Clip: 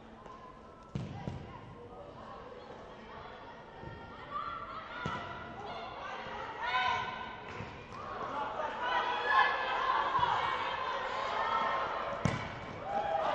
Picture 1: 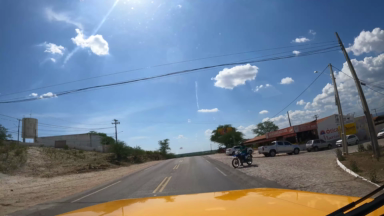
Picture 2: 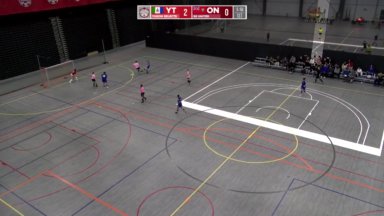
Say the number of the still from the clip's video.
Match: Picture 2